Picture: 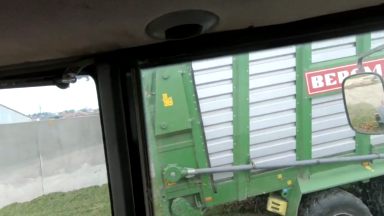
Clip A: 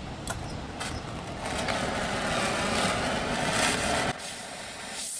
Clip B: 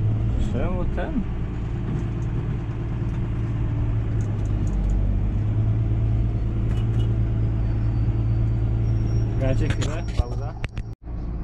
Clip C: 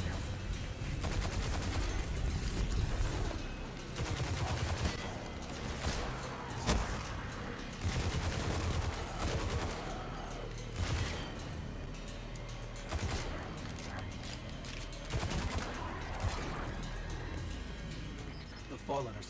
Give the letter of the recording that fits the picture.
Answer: B